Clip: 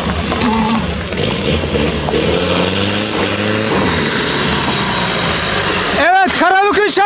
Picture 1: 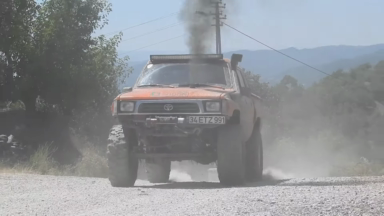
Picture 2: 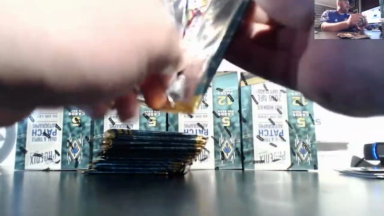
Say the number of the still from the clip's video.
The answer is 1